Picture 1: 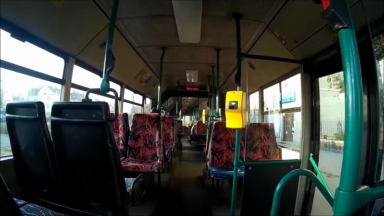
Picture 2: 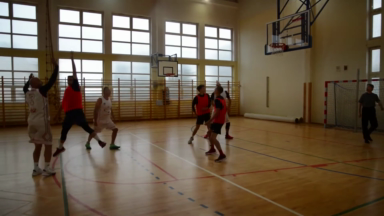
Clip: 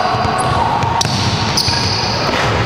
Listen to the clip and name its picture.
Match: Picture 2